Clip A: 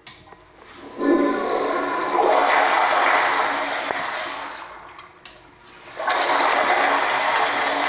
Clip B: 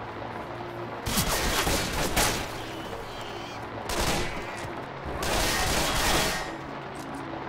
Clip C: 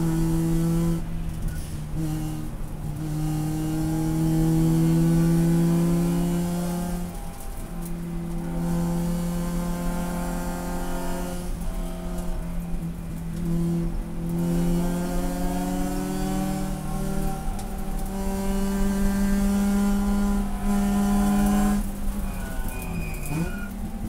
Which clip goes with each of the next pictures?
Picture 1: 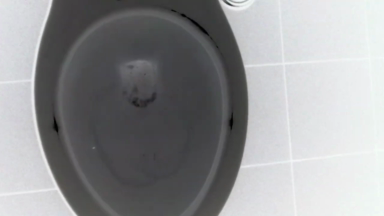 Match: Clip A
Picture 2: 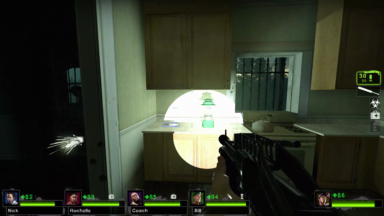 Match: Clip B